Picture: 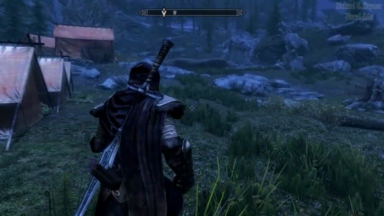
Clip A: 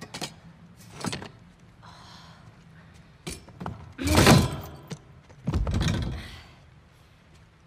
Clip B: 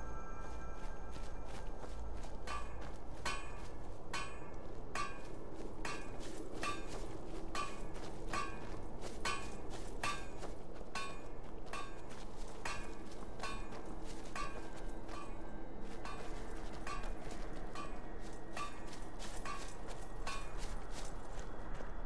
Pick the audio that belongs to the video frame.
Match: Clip B